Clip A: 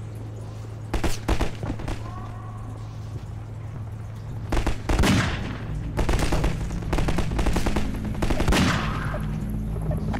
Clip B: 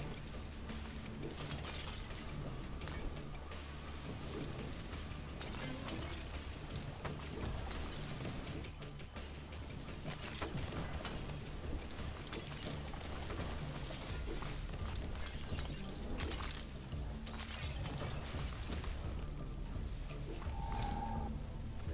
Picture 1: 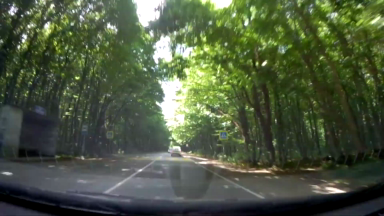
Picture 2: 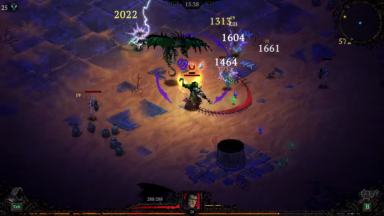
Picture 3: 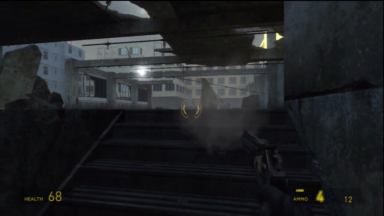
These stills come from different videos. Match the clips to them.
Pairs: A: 3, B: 2